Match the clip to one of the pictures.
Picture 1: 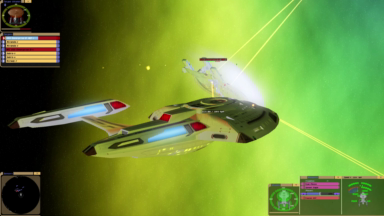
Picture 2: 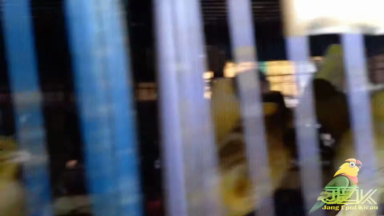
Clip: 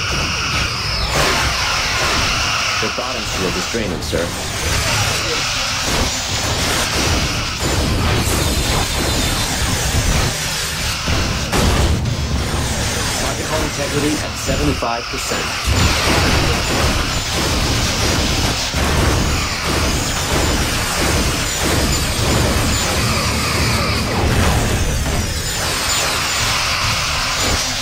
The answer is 1